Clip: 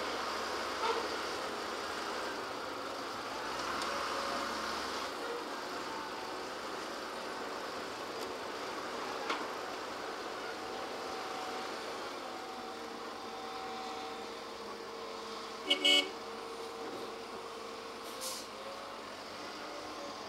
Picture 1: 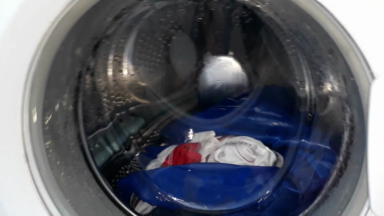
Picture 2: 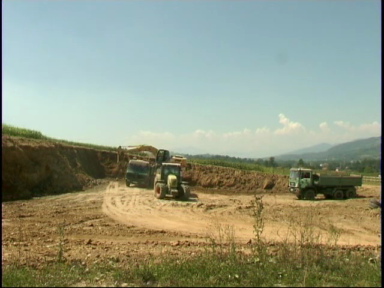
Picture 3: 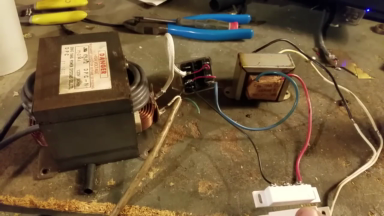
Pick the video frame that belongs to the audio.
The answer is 2